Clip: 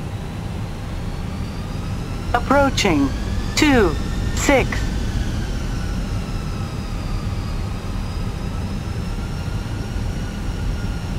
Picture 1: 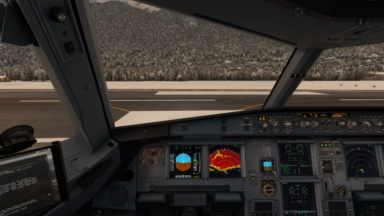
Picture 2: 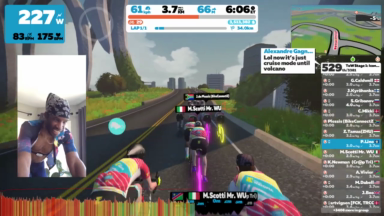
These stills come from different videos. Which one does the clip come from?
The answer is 1